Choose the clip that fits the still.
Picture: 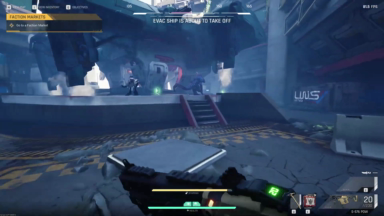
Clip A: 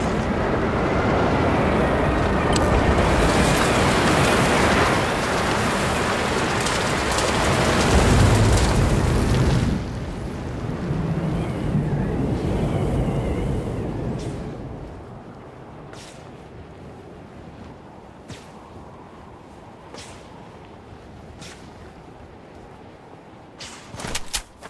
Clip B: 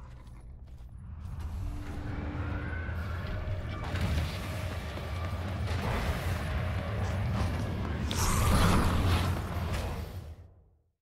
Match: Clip B